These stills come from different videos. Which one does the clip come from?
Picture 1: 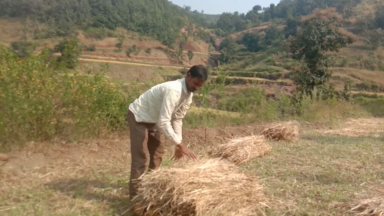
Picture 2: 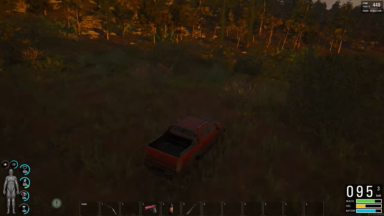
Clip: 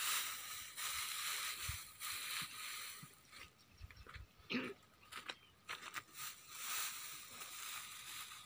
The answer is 1